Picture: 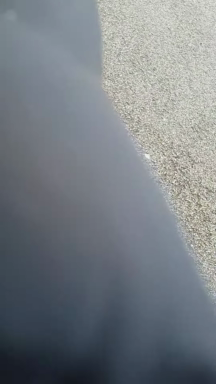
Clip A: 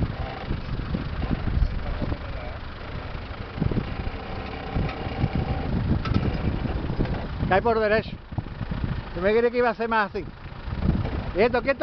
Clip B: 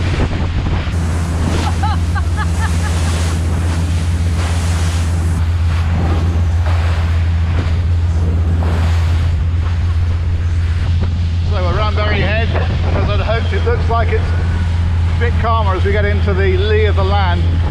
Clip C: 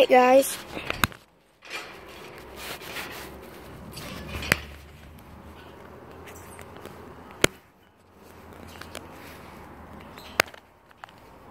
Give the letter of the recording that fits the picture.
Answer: C